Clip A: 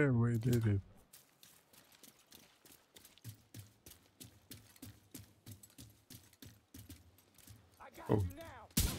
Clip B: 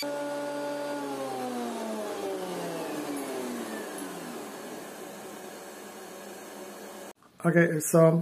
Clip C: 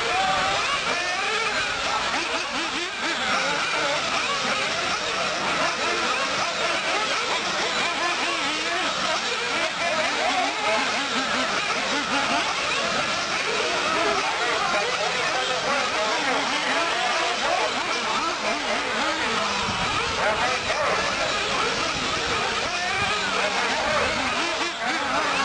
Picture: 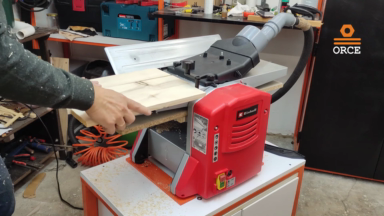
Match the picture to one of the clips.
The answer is B